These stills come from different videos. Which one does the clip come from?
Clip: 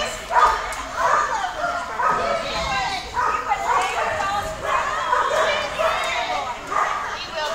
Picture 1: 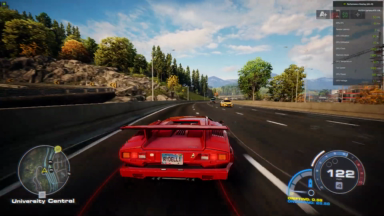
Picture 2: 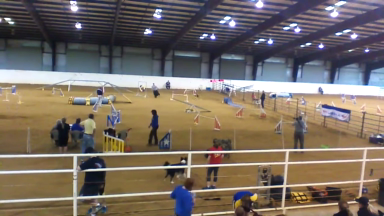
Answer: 2